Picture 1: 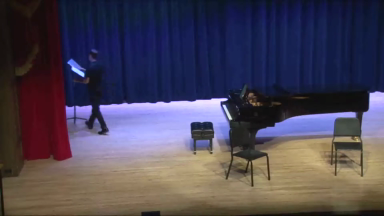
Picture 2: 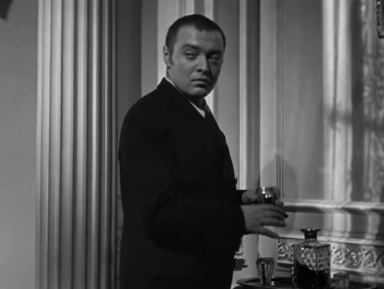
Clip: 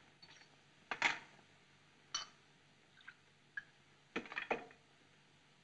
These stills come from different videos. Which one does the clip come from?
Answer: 2